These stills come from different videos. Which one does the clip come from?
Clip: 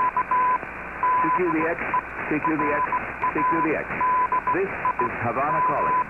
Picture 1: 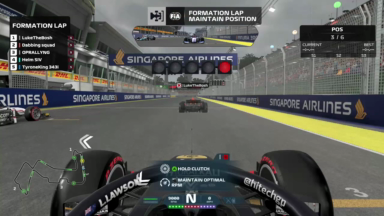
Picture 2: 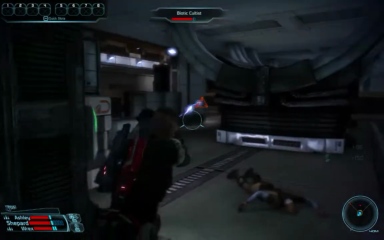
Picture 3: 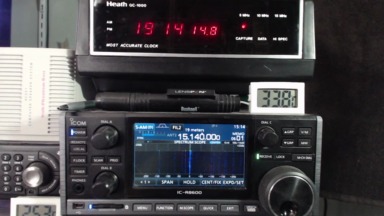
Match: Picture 3